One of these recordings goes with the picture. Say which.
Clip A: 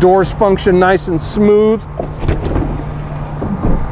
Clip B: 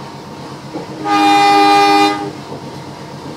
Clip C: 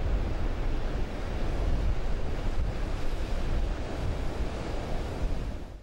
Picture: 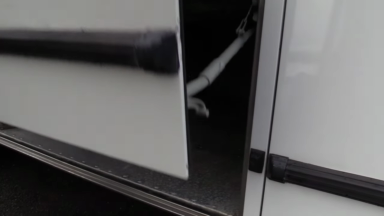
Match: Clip A